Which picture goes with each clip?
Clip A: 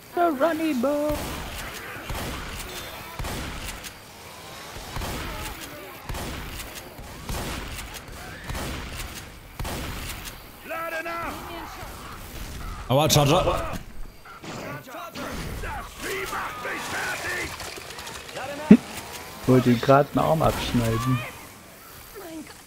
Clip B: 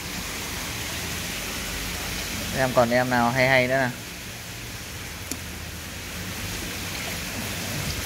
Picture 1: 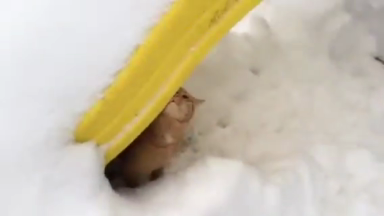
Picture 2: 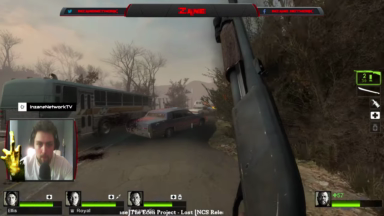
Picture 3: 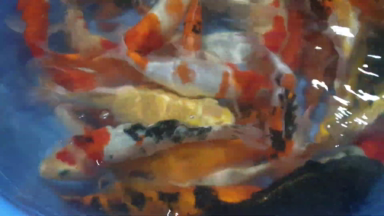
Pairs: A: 2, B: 3